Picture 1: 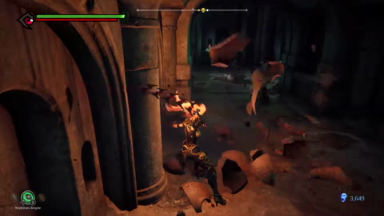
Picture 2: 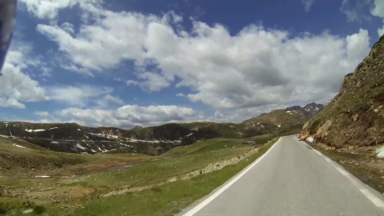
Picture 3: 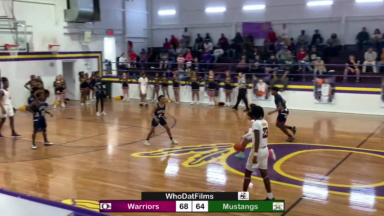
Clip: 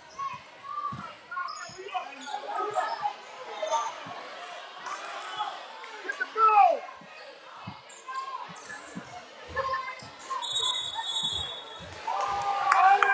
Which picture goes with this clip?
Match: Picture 3